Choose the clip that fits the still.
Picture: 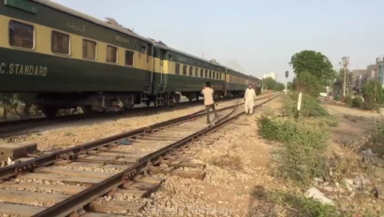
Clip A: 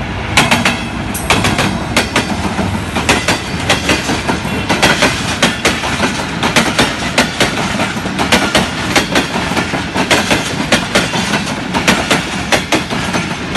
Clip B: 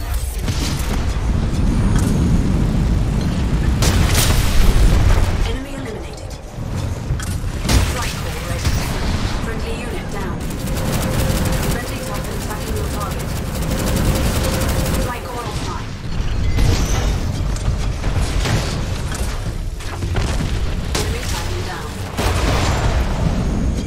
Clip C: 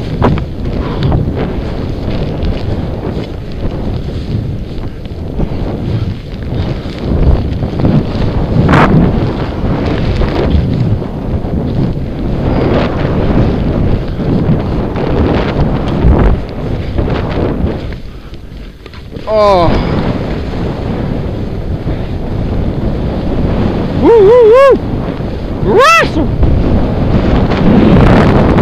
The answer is A